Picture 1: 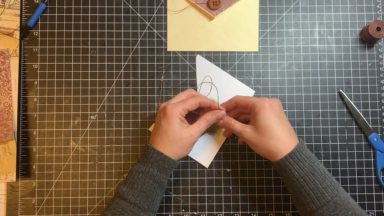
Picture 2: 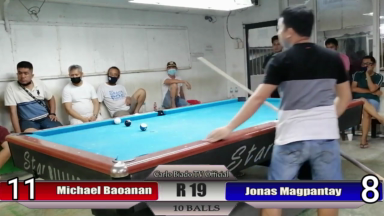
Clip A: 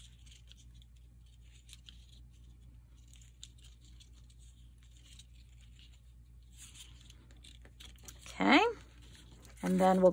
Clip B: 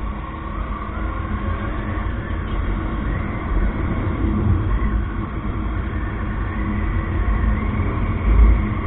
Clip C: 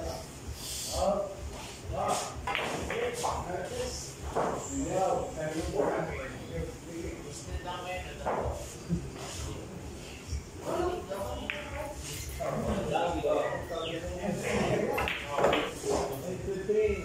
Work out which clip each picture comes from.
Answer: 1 A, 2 C